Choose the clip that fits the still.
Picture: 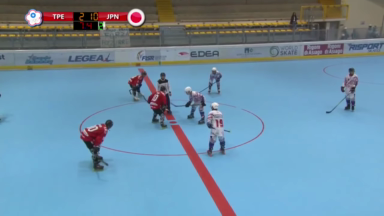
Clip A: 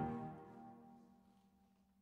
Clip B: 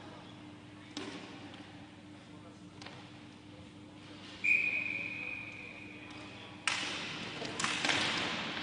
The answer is B